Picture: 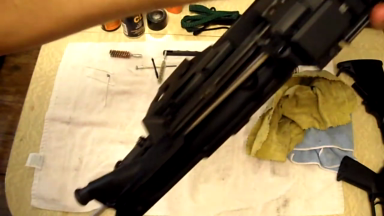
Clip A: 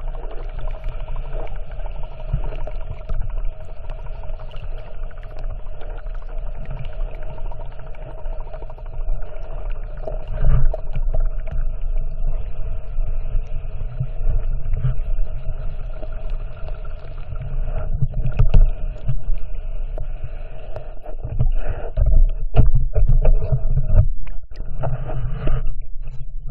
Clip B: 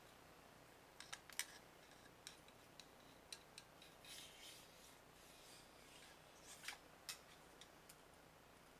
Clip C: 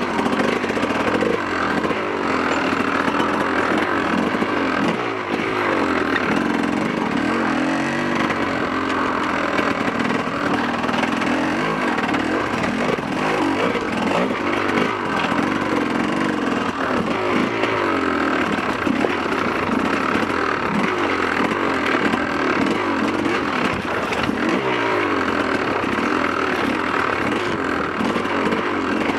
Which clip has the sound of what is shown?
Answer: B